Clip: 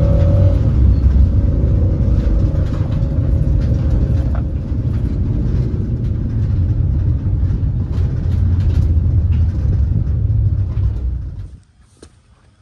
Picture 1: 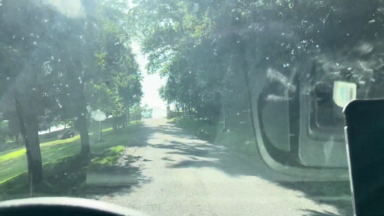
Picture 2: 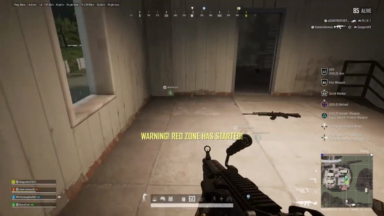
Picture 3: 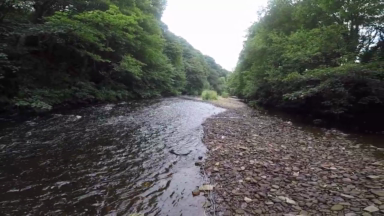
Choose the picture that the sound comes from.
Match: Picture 1